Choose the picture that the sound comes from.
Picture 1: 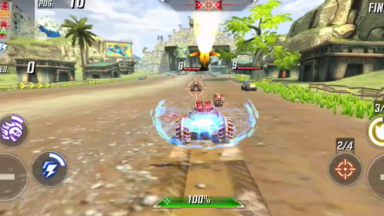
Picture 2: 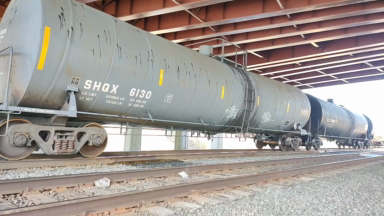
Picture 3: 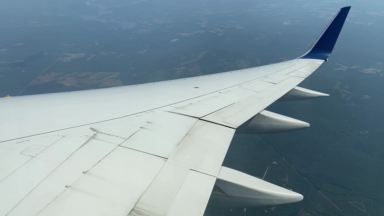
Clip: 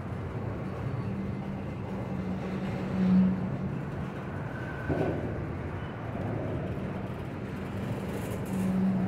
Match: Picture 2